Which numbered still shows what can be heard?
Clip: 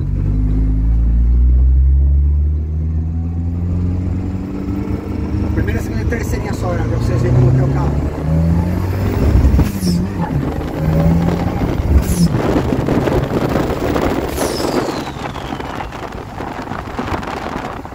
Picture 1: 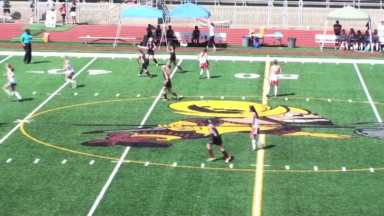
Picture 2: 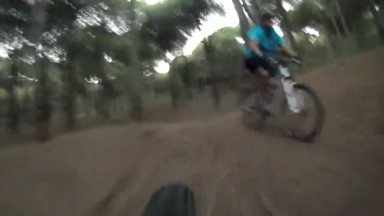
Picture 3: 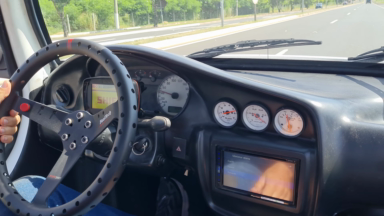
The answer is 3